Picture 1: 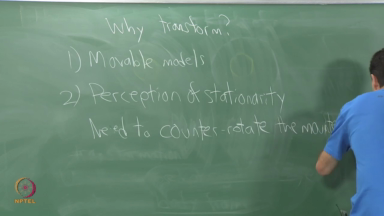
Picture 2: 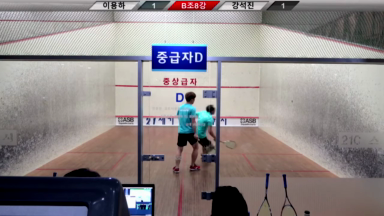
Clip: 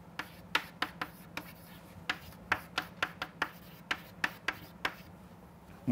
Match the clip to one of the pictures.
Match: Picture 1